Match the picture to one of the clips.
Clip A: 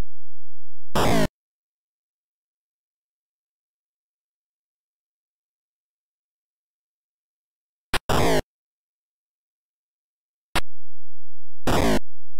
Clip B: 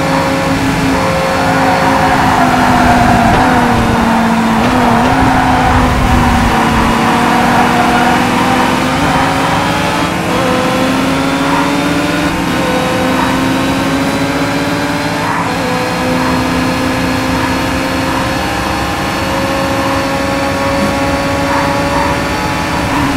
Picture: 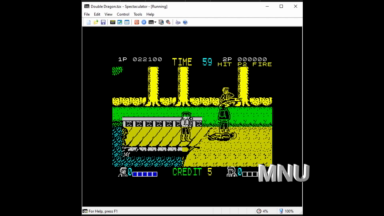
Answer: A